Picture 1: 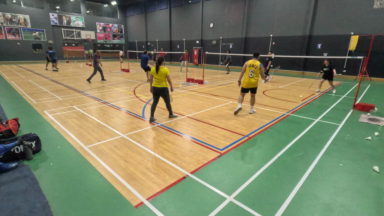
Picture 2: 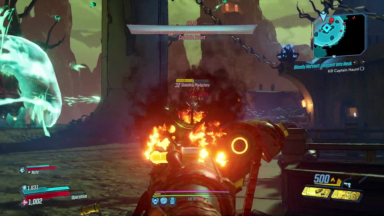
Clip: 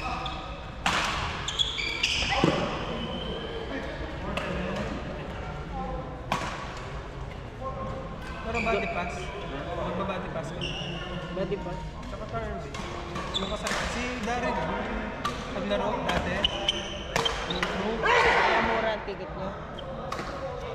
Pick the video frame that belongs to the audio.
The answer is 1